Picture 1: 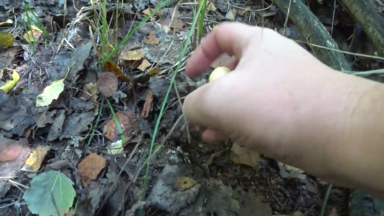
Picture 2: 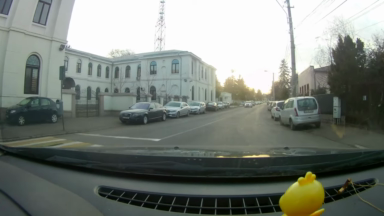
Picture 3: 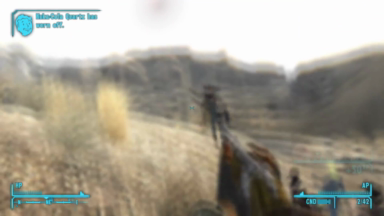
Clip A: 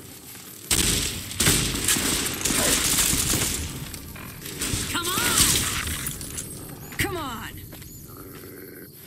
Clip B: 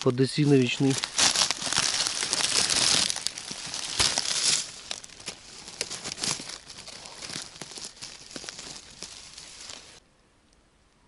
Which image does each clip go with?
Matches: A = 3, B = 1